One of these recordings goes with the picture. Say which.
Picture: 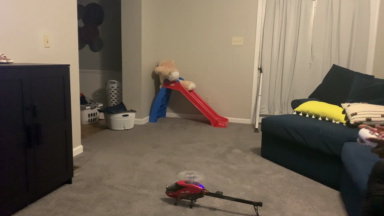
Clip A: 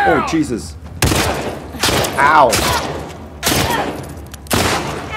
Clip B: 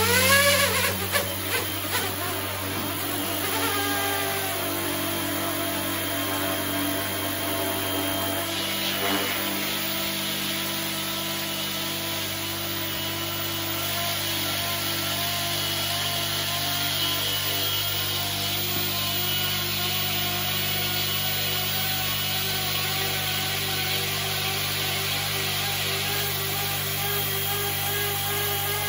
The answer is B